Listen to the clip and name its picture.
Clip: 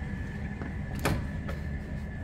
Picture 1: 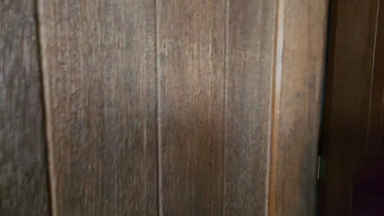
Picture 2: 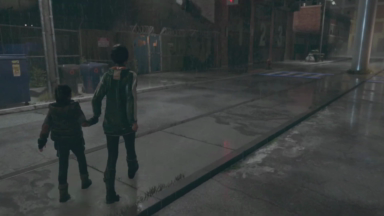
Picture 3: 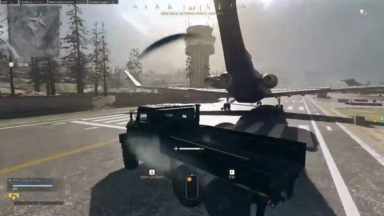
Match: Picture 1